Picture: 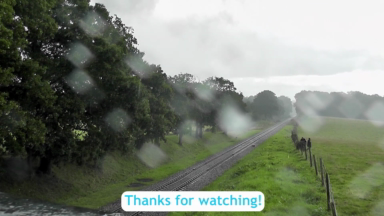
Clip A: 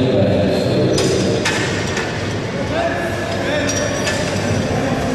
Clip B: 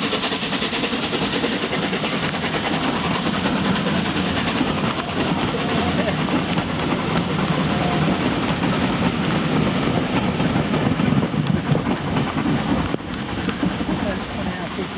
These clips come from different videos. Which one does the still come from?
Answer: B